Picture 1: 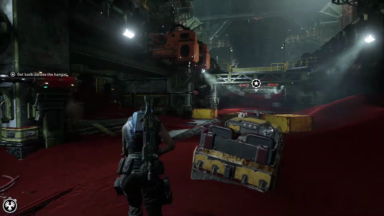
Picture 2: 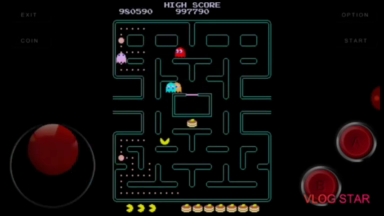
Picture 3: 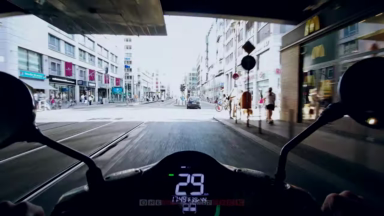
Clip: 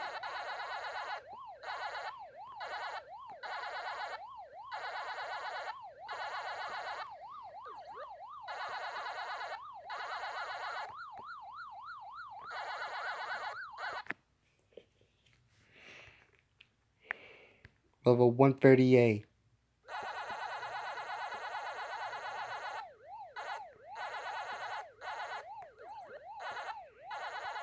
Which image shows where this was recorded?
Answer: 2